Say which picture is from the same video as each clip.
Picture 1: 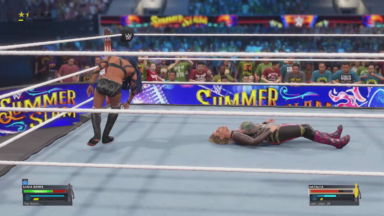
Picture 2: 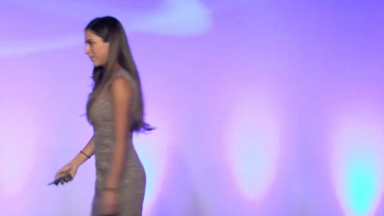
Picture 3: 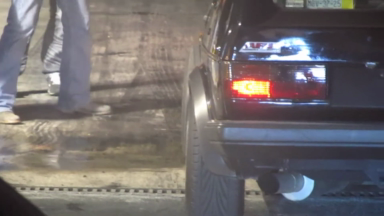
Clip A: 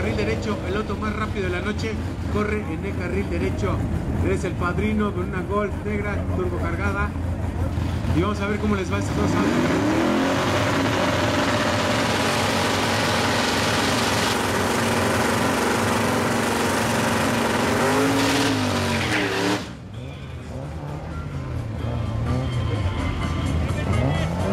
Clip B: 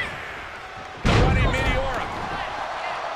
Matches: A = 3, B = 1